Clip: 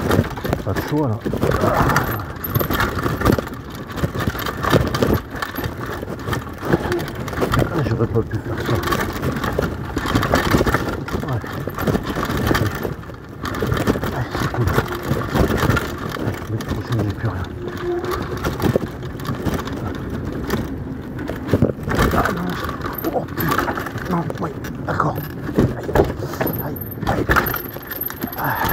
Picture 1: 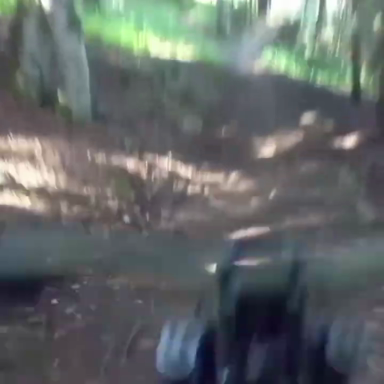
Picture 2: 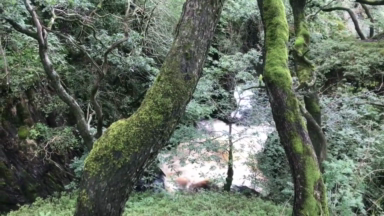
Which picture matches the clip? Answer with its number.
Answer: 1